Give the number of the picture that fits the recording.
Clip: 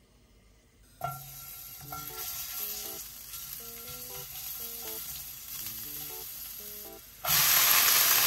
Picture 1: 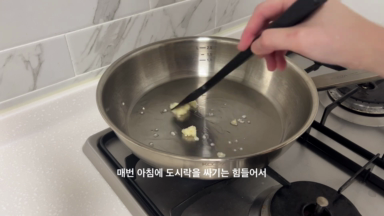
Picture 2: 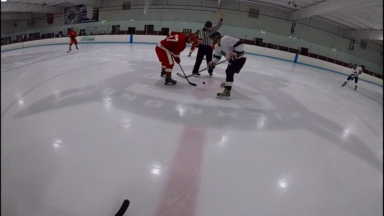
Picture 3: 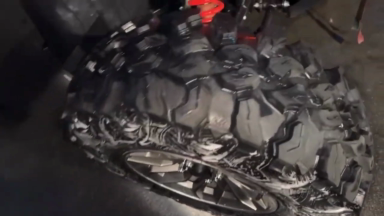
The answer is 1